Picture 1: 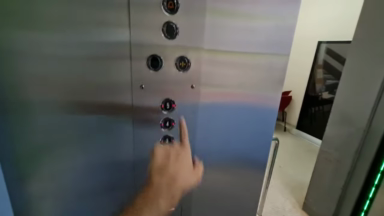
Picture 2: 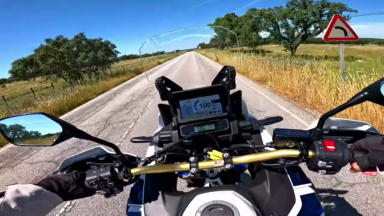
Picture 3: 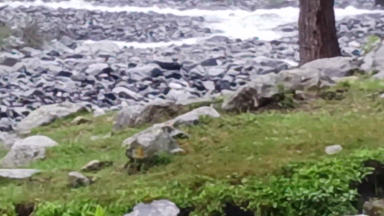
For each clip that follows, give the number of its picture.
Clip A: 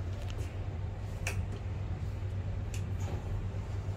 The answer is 1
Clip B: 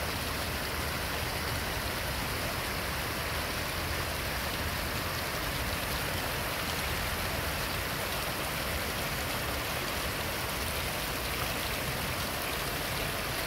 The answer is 3